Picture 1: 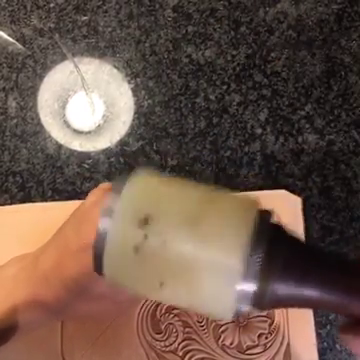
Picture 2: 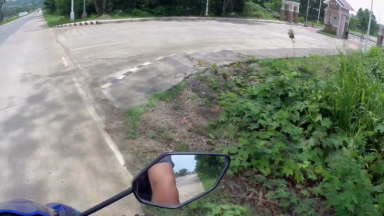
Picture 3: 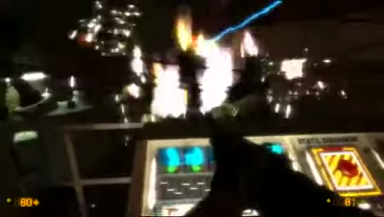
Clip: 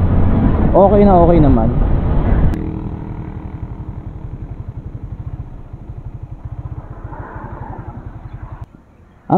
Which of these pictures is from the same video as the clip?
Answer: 2